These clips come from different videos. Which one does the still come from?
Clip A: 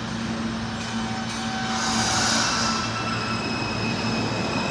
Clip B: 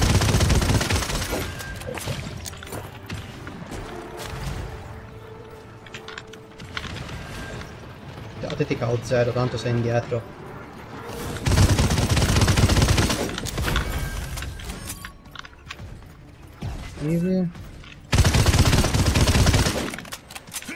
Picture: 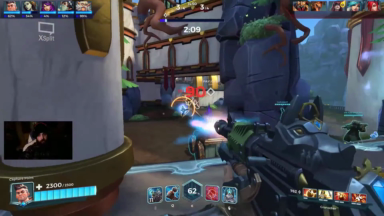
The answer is B